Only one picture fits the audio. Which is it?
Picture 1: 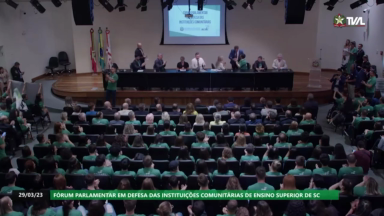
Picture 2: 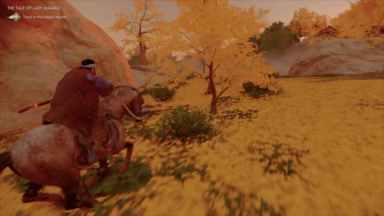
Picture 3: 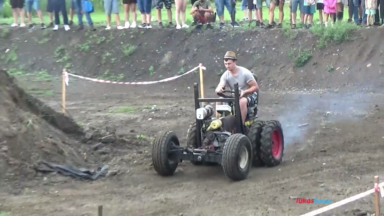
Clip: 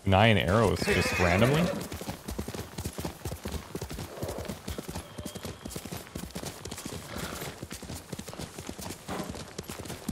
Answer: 2